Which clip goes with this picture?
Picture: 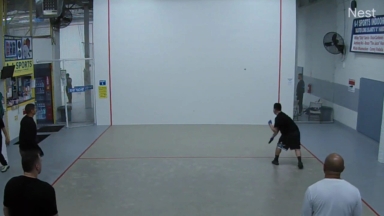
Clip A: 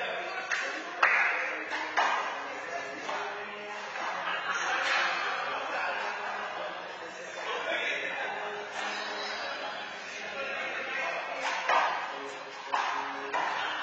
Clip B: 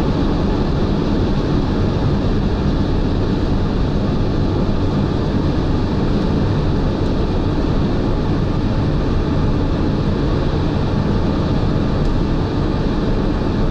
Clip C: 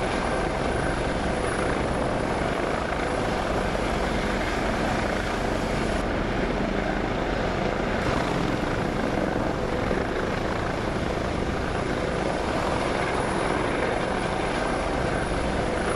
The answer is A